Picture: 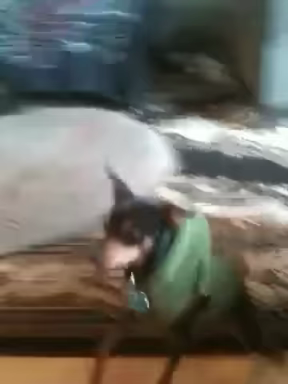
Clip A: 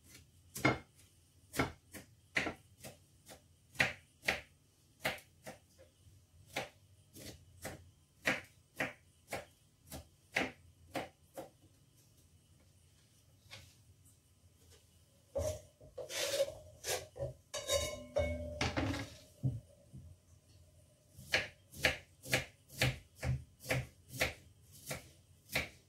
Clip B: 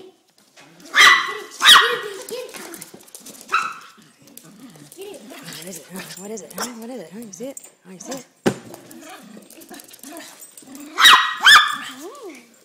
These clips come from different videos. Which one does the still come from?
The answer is B